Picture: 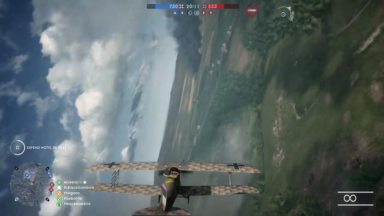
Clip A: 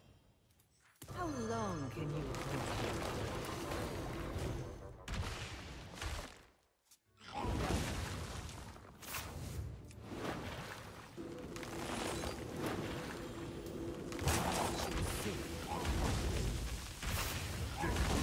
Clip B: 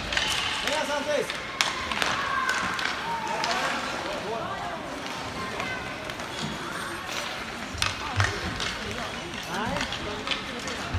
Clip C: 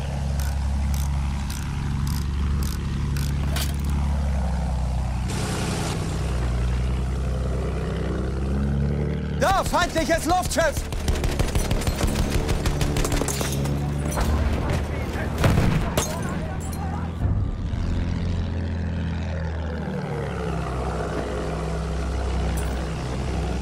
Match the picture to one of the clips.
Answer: C